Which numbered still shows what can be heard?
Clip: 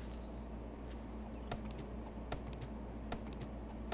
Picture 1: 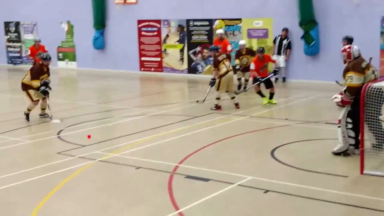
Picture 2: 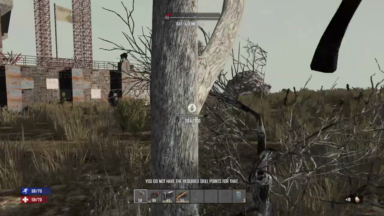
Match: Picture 2